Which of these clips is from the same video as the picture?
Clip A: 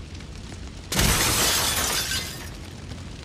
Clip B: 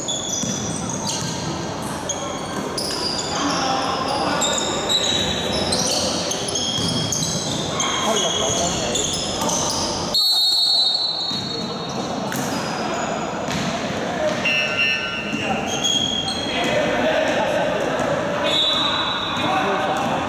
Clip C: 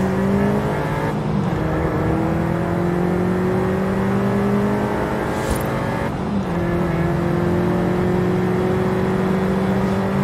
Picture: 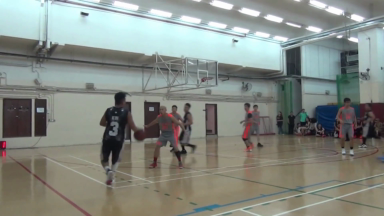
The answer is B